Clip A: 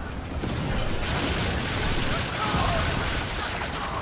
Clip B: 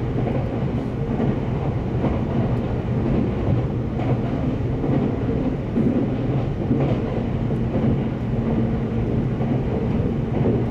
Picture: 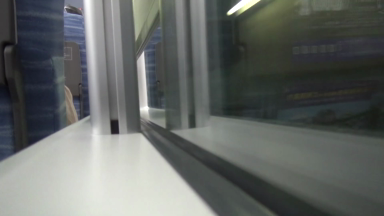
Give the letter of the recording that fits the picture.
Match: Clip B